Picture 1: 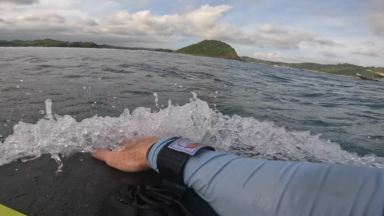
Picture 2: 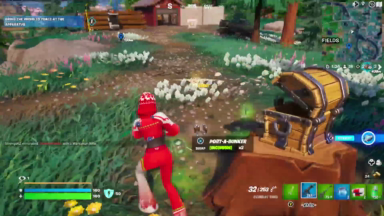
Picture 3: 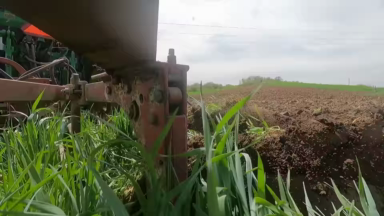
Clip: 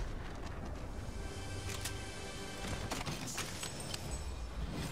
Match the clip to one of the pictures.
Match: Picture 2